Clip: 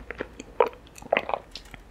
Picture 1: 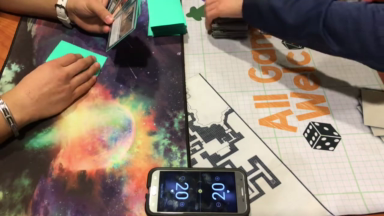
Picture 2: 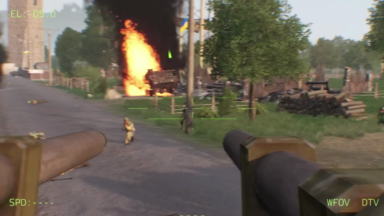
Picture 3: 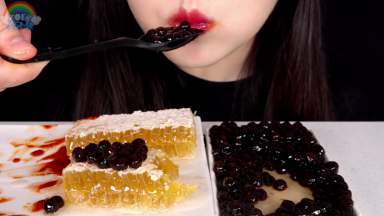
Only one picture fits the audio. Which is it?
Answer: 3